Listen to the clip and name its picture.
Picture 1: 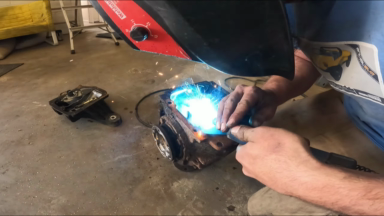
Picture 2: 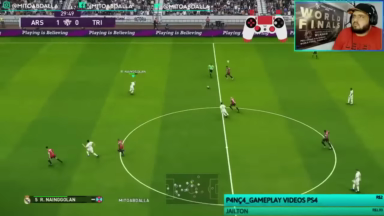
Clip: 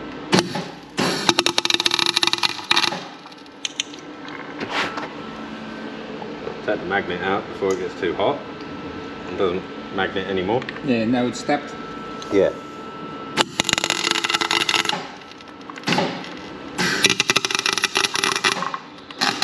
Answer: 1